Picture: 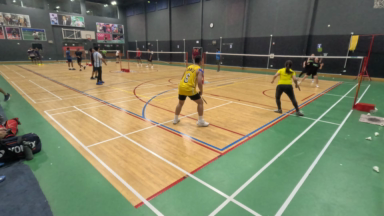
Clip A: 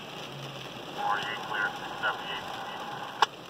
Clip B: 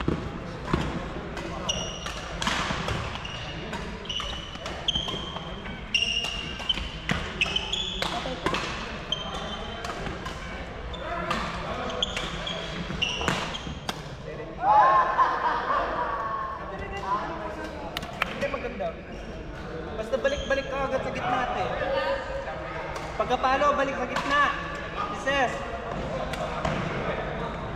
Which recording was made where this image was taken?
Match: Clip B